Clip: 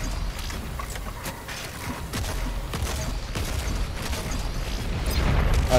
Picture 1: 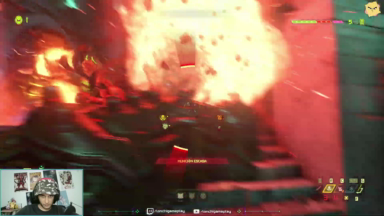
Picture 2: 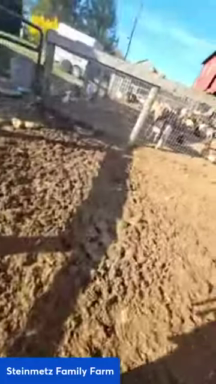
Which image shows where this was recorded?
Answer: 1